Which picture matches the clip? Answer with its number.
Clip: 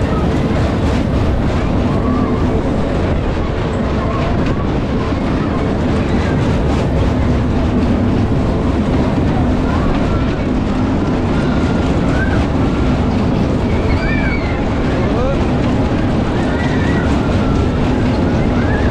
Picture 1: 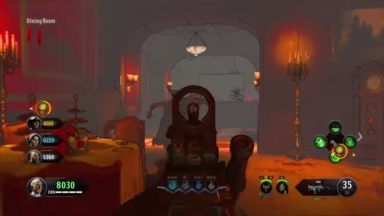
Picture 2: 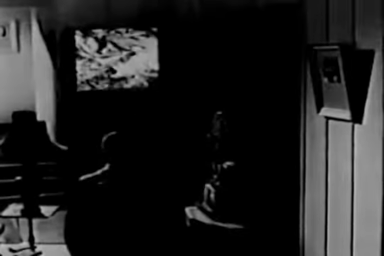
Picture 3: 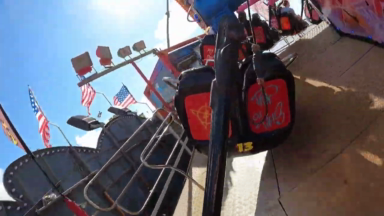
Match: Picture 3